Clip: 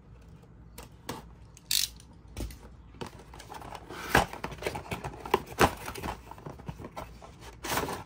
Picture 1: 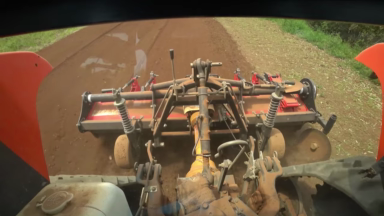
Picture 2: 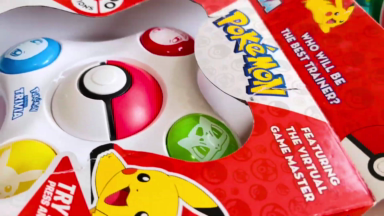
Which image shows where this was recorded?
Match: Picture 2